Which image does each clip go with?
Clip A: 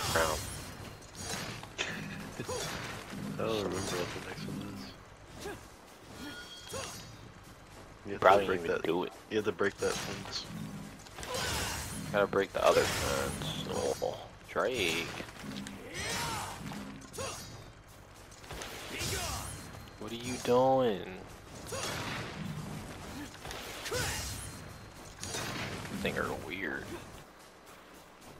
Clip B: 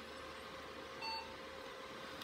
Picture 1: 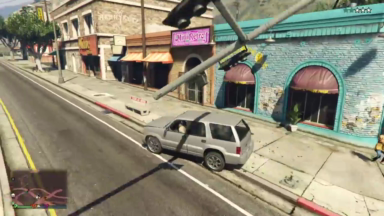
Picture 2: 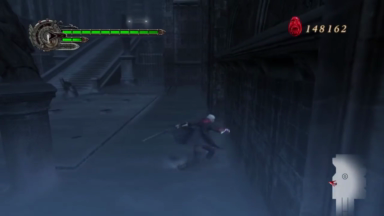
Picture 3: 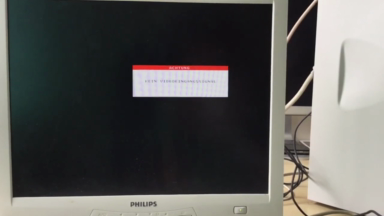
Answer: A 2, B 3